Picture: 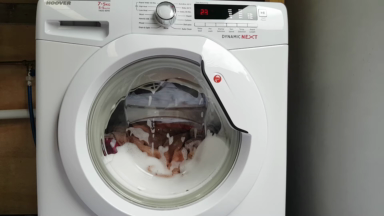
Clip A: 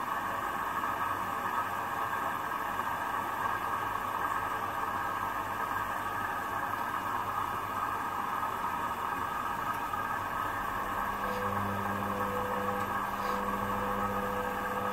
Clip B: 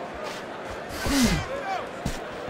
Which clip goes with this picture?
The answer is A